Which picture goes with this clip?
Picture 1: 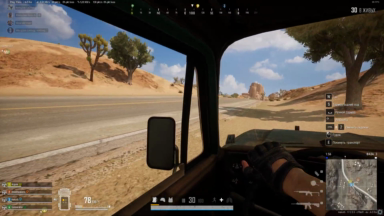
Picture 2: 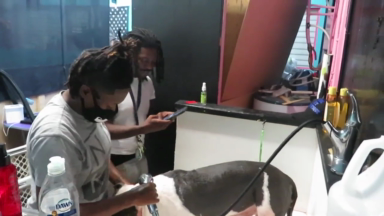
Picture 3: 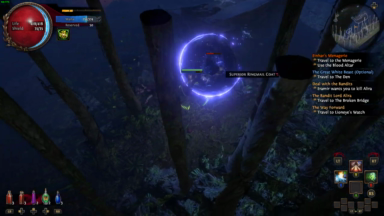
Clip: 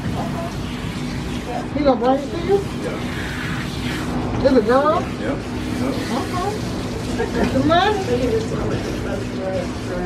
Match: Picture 2